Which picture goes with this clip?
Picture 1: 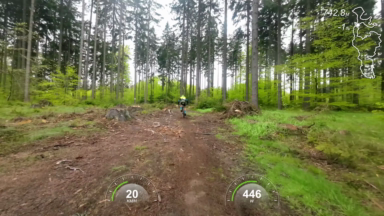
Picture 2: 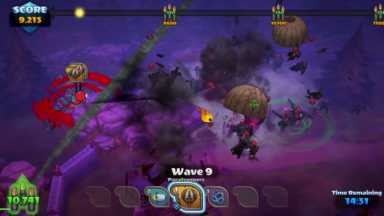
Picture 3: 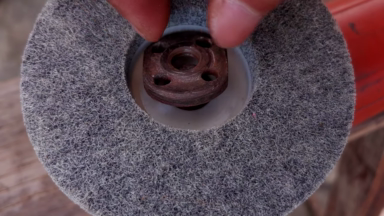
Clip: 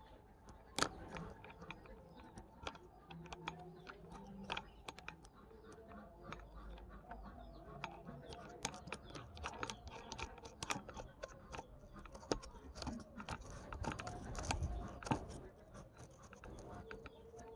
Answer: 3